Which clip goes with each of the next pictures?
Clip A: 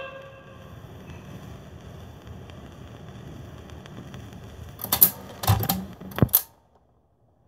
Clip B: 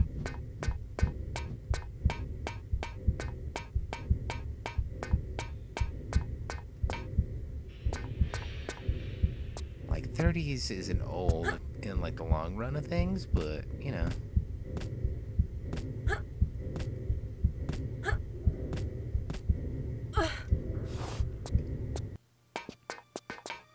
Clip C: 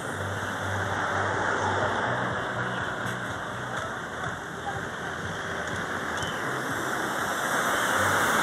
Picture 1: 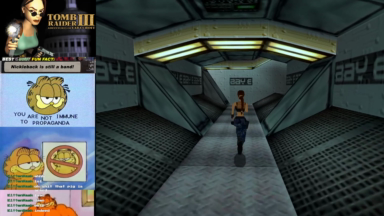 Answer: B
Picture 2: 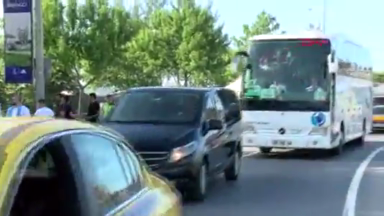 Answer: C